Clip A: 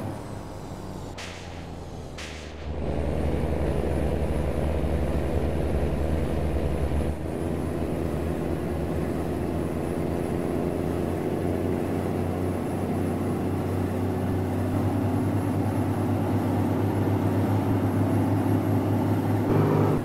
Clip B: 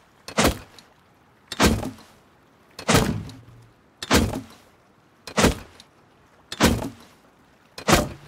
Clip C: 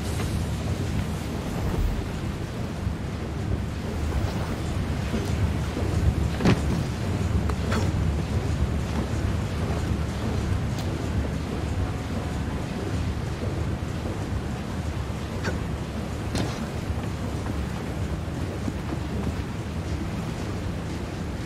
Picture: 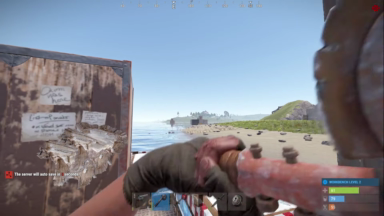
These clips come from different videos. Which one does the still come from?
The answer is B